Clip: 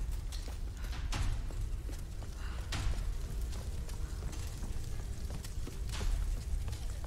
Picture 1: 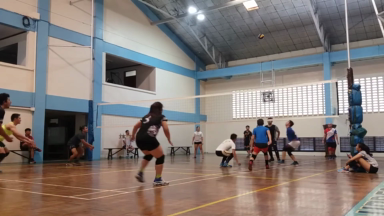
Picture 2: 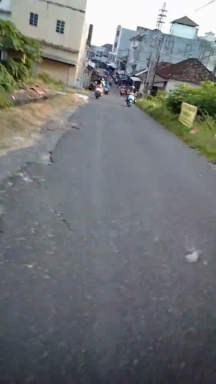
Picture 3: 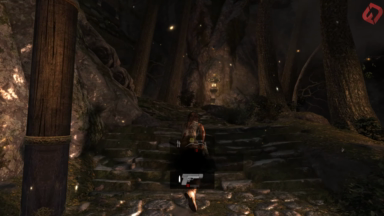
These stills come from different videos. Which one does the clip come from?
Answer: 3